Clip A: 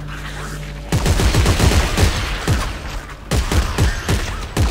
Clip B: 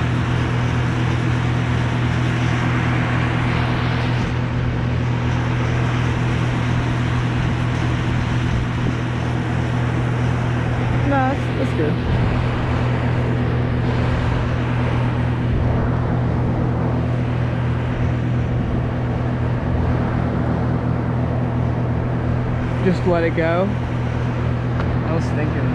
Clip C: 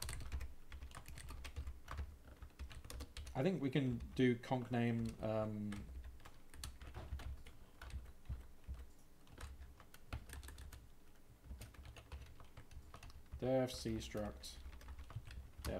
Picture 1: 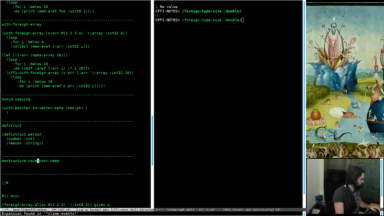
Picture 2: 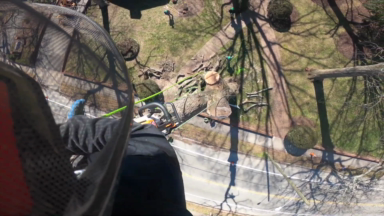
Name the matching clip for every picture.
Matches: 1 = C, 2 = B